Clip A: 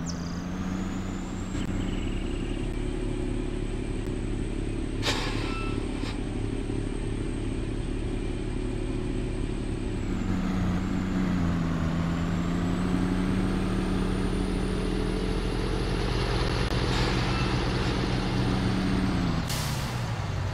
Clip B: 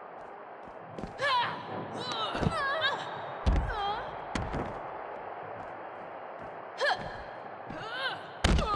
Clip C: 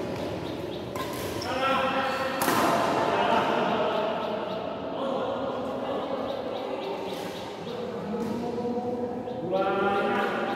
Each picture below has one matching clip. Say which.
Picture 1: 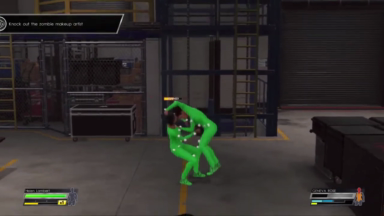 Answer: B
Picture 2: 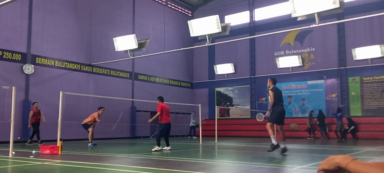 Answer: C